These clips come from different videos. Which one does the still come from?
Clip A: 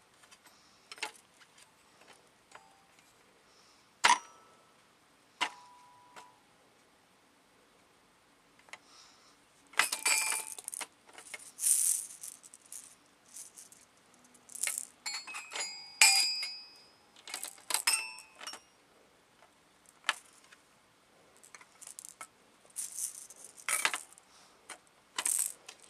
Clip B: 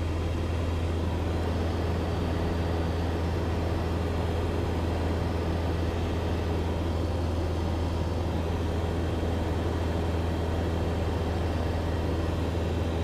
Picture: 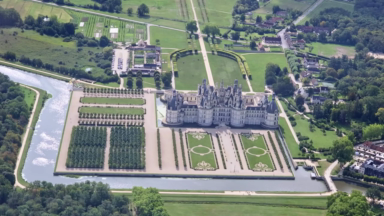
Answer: B